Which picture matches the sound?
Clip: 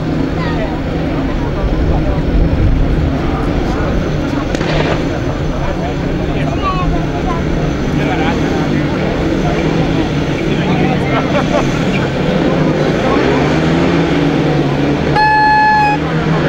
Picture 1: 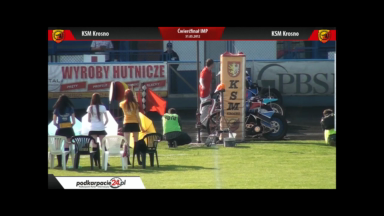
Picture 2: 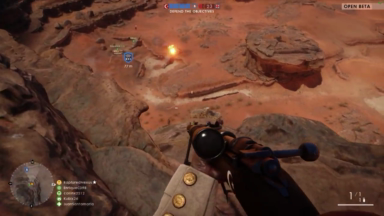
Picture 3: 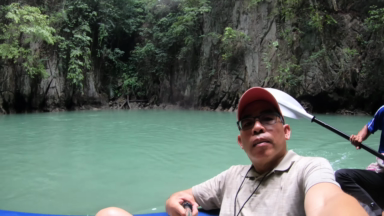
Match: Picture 1